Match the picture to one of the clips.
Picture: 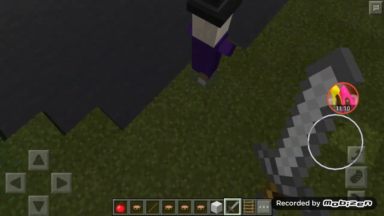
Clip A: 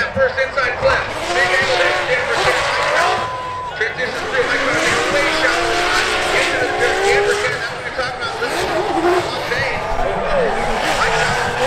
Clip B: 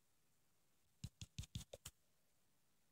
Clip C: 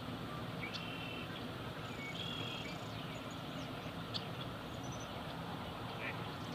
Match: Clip B